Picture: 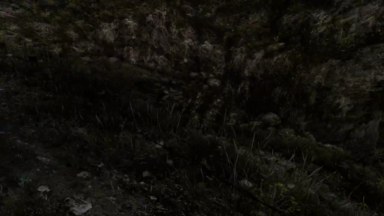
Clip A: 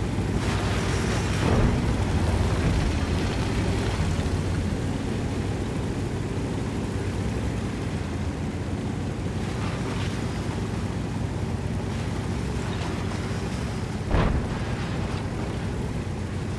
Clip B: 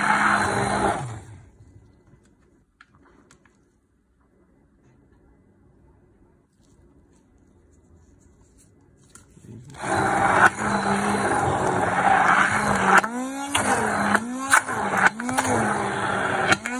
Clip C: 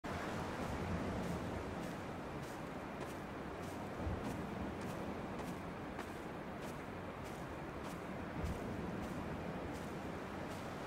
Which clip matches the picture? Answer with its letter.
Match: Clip C